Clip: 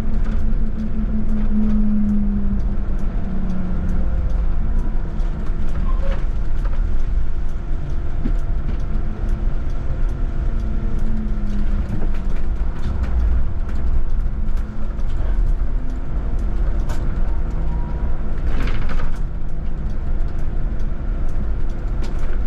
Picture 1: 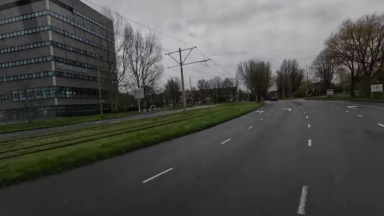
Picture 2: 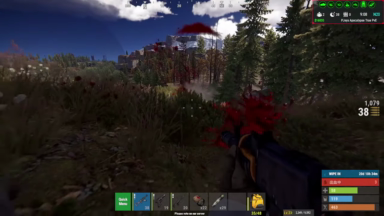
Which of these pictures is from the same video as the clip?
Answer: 1